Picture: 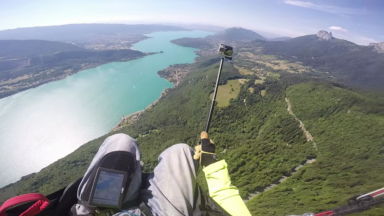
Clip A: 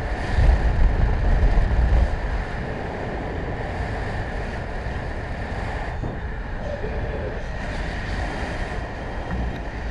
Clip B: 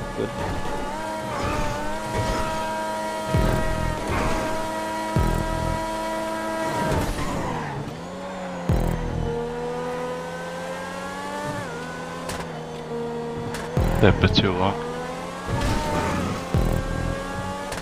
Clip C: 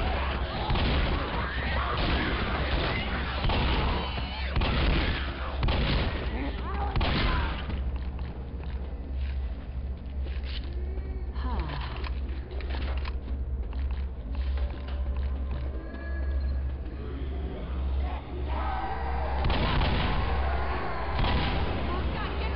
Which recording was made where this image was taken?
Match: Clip A